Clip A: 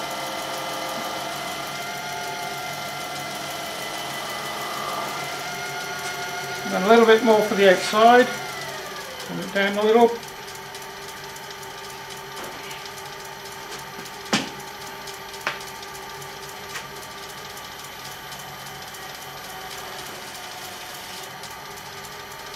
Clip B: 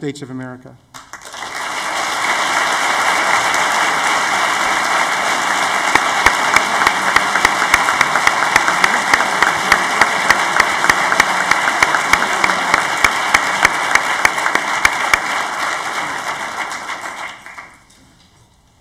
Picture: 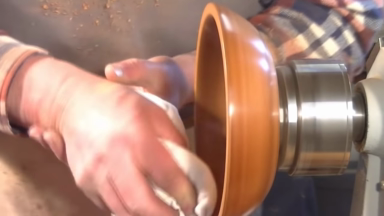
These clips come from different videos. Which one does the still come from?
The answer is A